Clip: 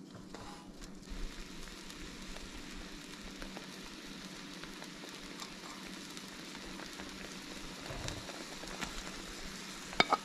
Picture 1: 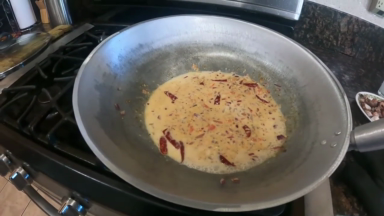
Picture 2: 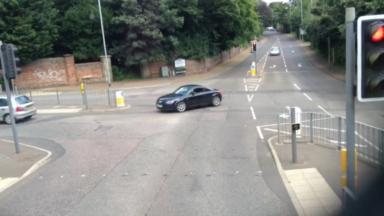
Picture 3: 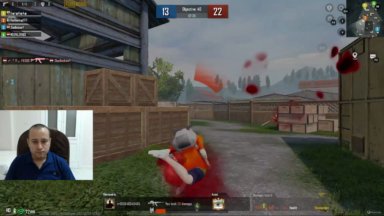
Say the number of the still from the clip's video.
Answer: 1